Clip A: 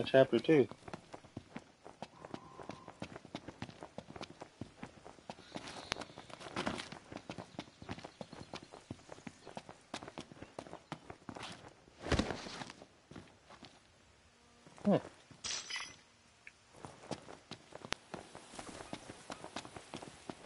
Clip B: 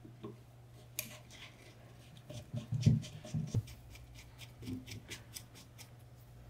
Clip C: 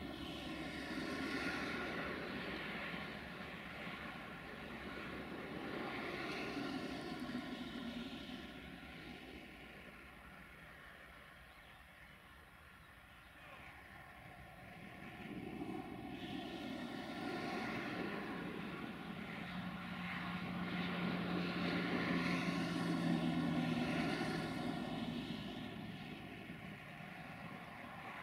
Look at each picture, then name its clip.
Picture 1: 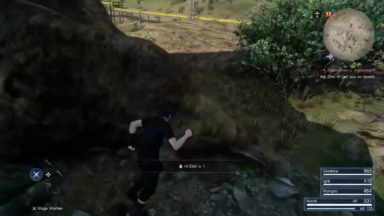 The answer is A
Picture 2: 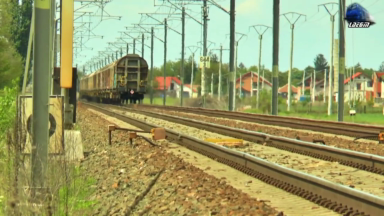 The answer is C